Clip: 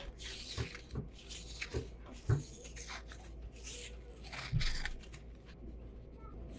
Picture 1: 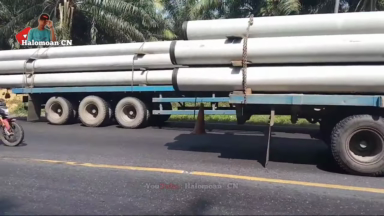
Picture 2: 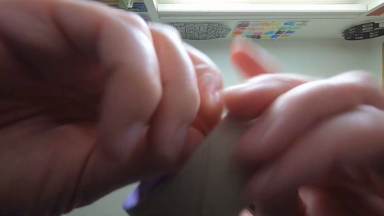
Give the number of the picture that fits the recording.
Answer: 2